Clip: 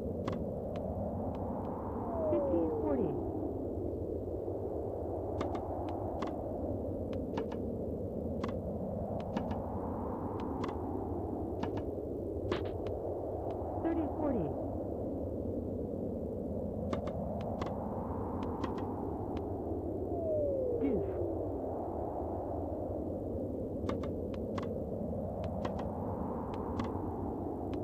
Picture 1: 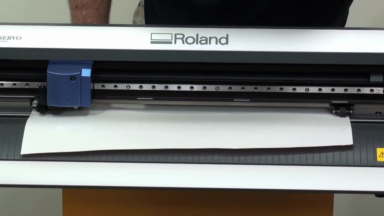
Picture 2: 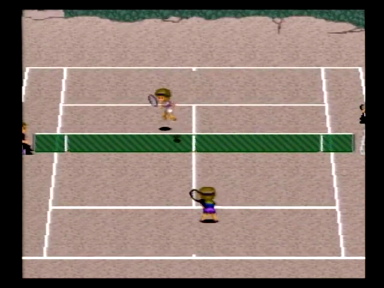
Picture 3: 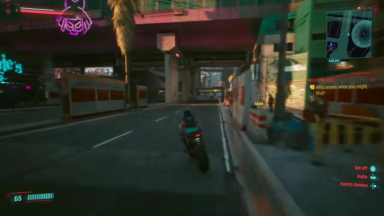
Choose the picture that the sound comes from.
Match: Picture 2